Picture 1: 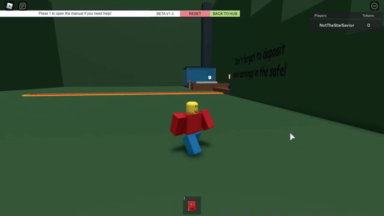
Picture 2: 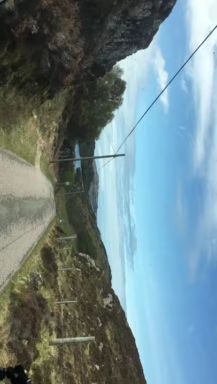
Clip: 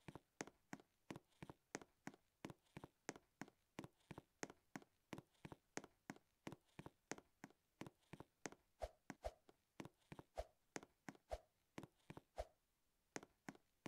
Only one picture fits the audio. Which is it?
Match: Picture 1